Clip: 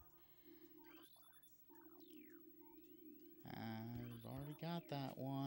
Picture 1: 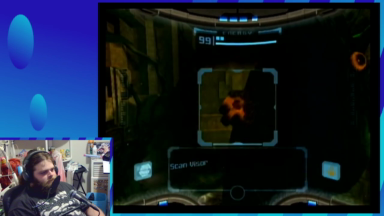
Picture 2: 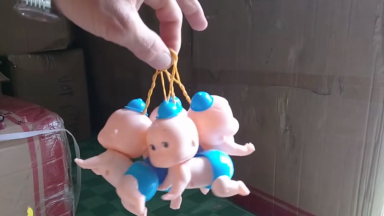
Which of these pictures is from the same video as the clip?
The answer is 1